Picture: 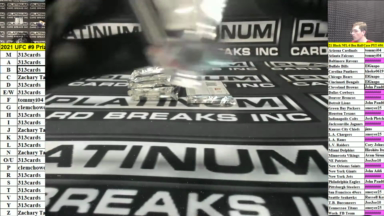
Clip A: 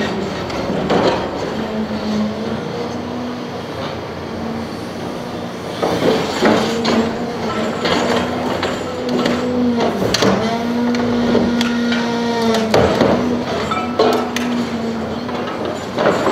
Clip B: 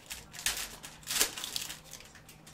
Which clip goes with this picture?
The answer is B